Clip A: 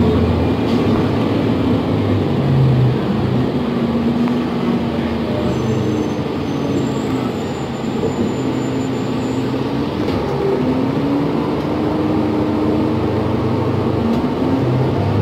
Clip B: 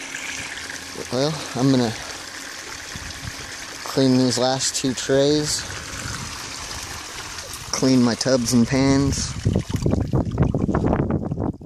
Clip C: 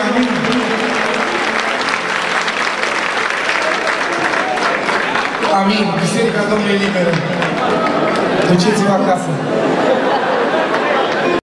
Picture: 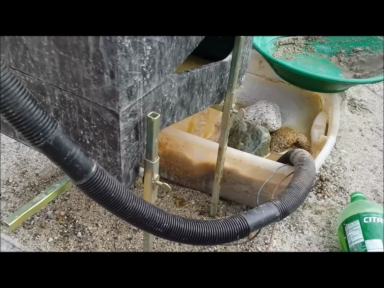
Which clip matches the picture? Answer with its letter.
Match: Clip B